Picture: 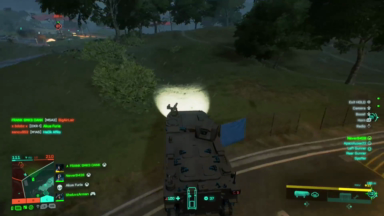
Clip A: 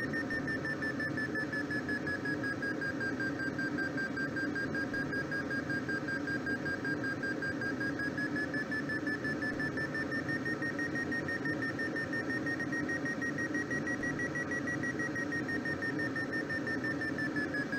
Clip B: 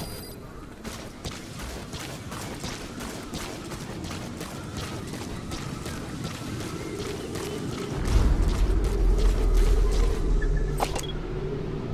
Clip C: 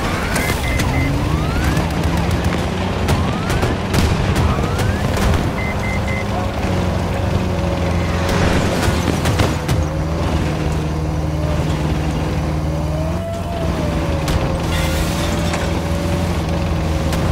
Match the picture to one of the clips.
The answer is C